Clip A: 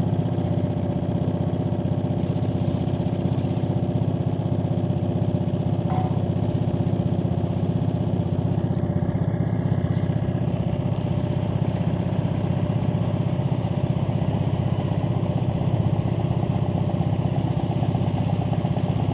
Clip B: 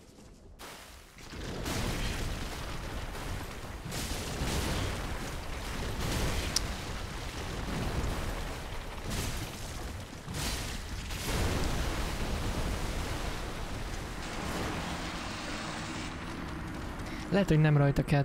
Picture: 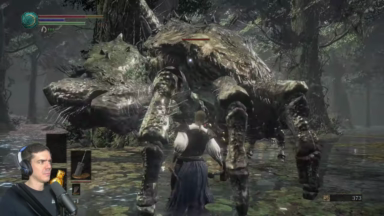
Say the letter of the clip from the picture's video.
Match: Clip B